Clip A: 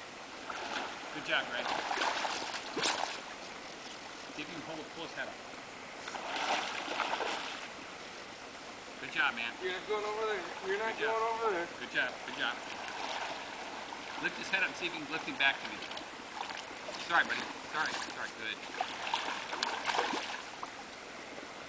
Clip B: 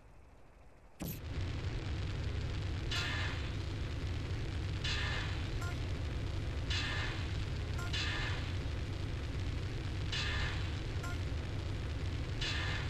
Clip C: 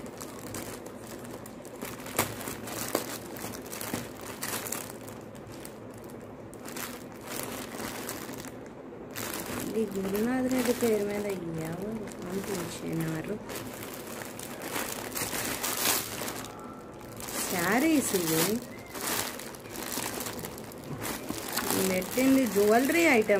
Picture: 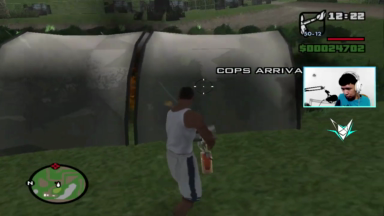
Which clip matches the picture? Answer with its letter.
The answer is B